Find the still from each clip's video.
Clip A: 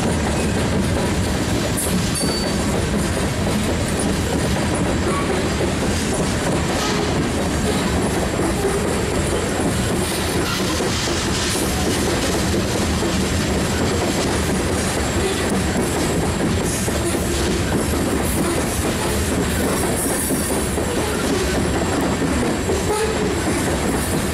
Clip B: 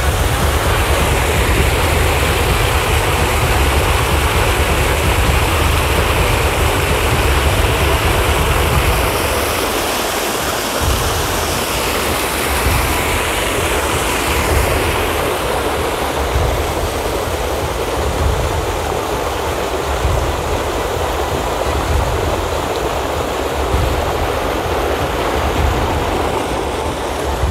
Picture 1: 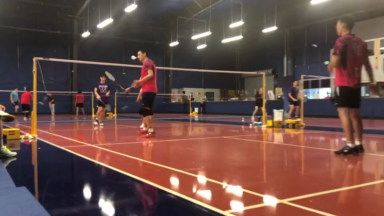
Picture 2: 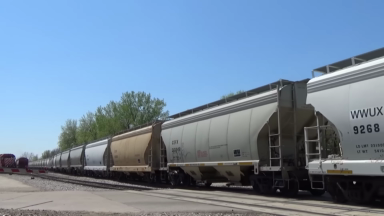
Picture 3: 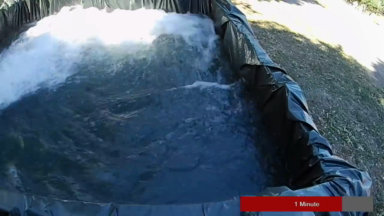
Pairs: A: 2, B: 3